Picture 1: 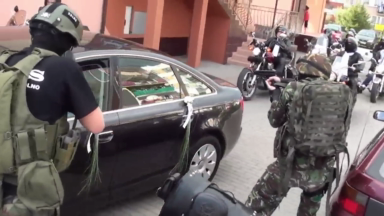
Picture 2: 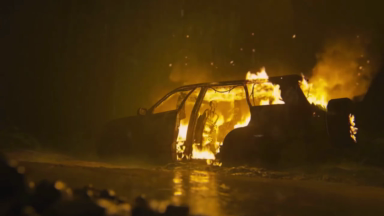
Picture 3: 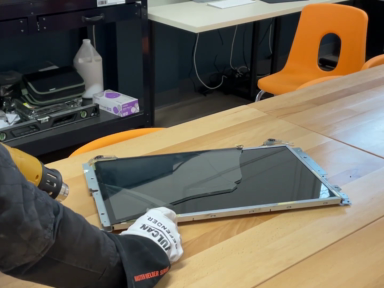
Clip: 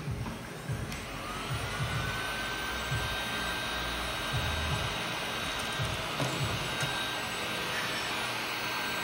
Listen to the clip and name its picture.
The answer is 3